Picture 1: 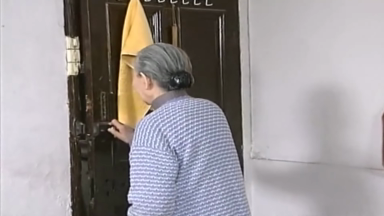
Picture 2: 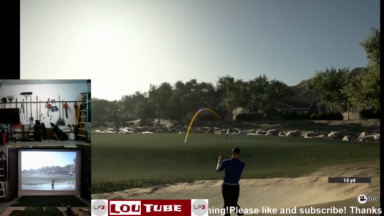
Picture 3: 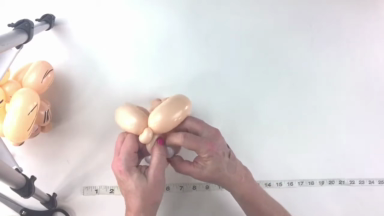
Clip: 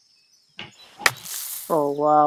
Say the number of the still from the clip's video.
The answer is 2